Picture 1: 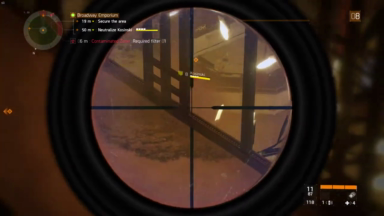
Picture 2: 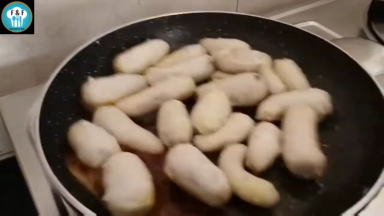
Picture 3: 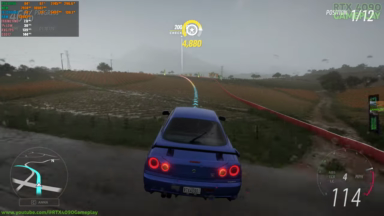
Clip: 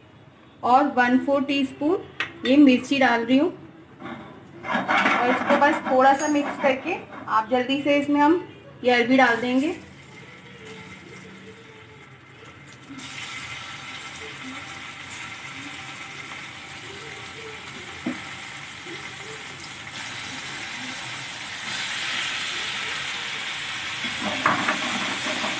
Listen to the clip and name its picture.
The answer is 2